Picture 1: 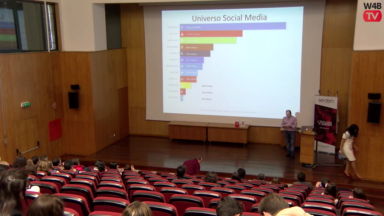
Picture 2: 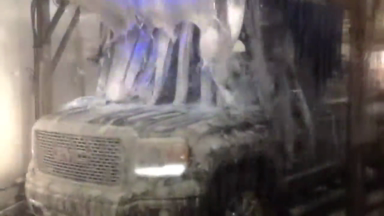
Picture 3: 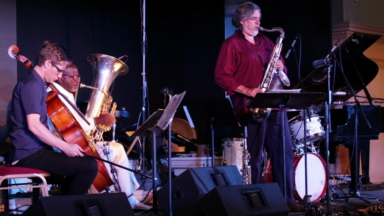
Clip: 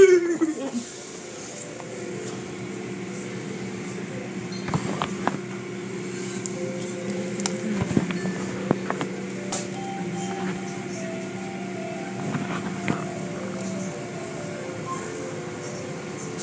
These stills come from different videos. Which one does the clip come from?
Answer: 2